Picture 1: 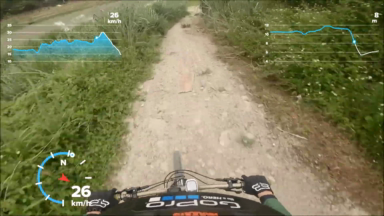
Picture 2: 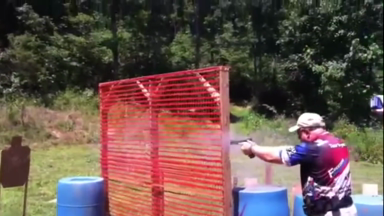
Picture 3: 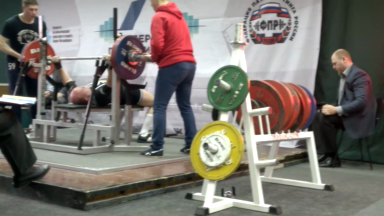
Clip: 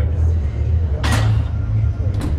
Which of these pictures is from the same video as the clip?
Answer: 3